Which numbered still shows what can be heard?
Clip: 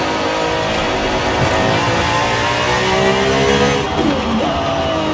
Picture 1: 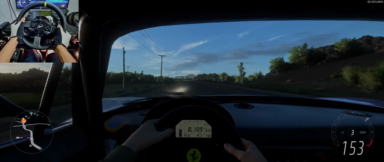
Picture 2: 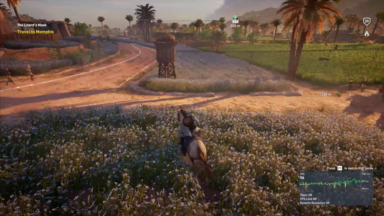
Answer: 1